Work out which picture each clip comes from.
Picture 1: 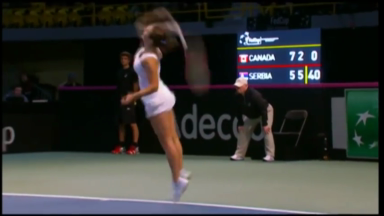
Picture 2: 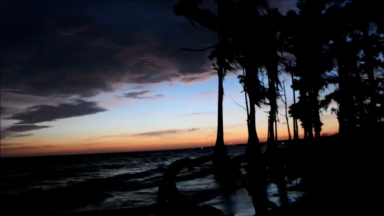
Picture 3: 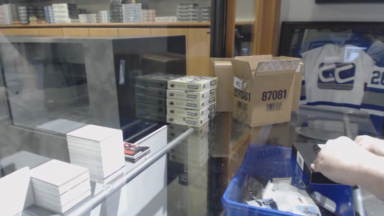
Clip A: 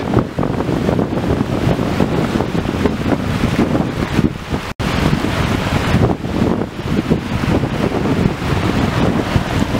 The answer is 2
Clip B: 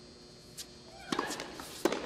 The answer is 1